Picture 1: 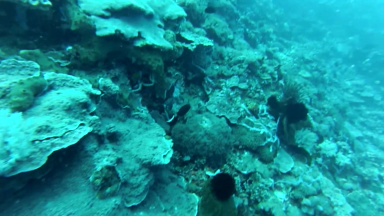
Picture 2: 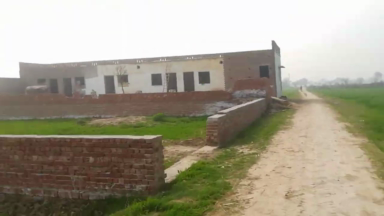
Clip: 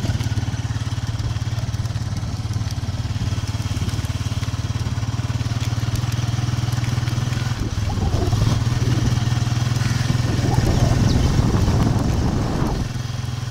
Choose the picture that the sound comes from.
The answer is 2